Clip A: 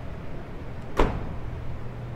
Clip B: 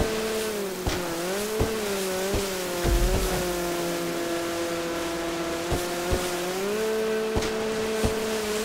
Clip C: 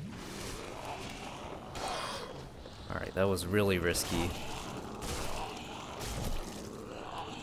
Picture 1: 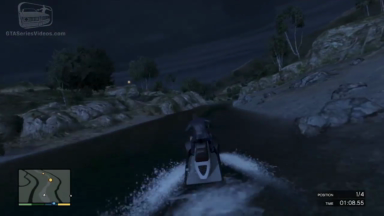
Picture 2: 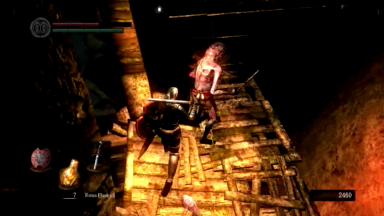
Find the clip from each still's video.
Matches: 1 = B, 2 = C